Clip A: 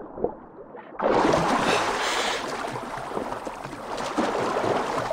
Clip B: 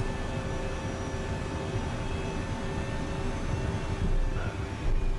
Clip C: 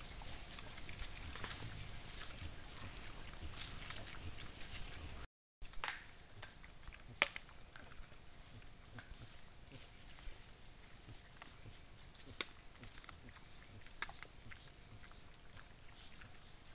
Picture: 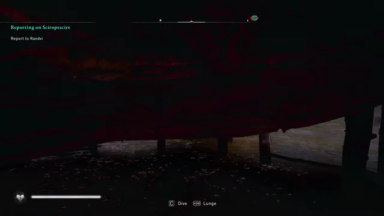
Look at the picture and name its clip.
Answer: A